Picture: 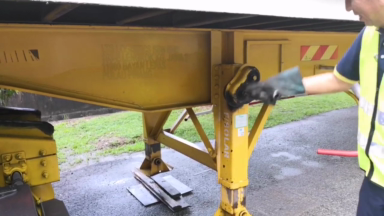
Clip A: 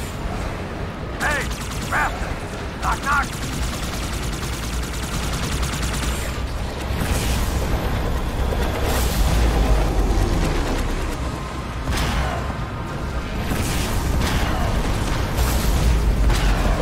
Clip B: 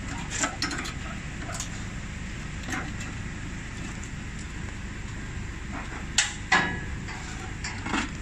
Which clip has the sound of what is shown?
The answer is B